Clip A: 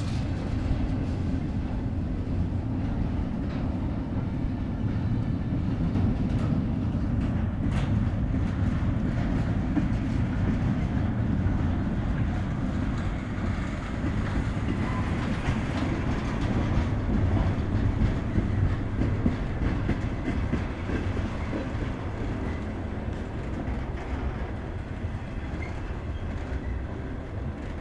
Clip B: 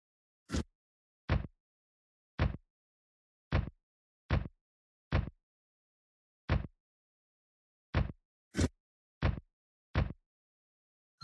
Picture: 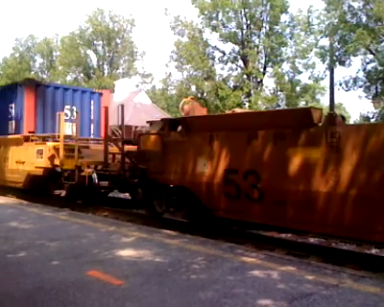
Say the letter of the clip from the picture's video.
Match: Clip A